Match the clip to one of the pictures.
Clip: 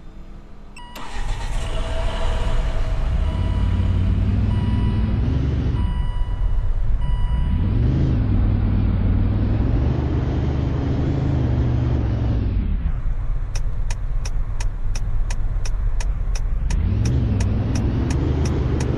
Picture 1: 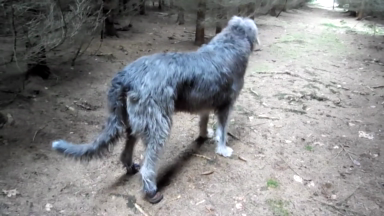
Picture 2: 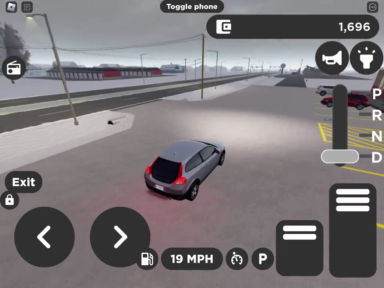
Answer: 2